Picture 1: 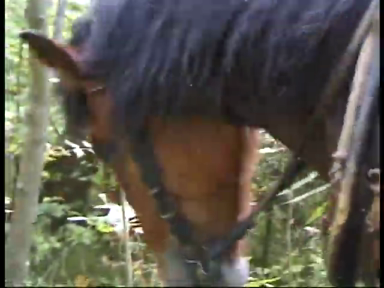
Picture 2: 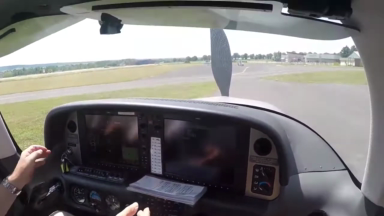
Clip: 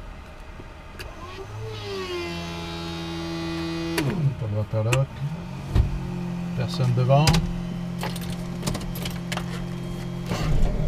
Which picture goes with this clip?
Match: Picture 2